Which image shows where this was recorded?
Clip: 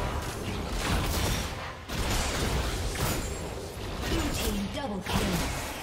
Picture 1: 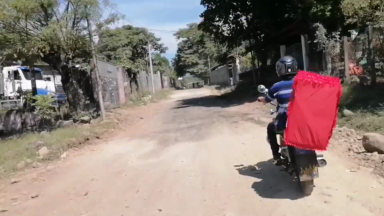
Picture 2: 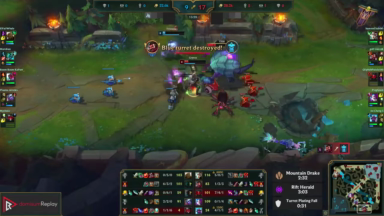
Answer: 2